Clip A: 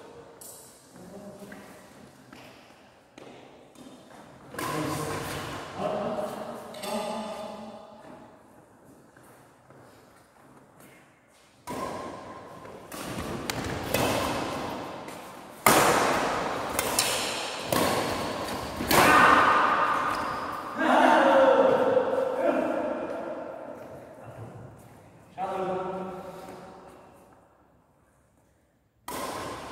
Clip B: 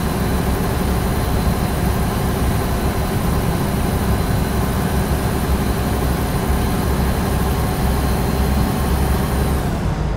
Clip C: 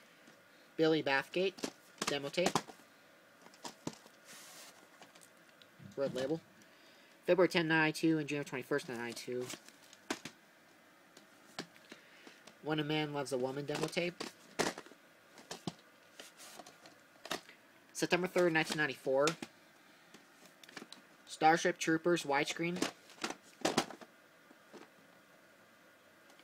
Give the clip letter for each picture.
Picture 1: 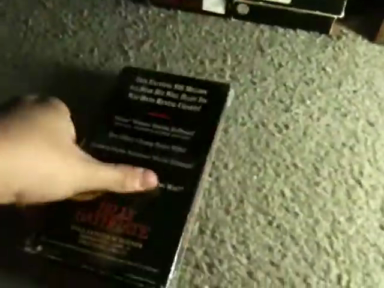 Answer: C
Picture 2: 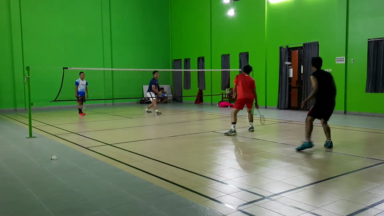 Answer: A